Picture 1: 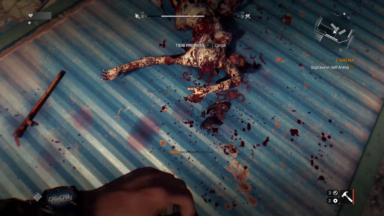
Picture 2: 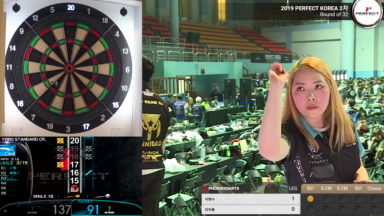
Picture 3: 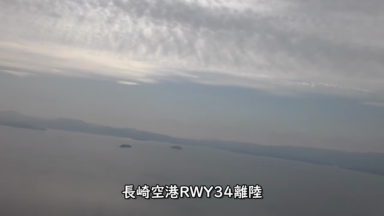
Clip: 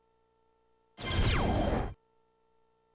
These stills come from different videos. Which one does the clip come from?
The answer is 2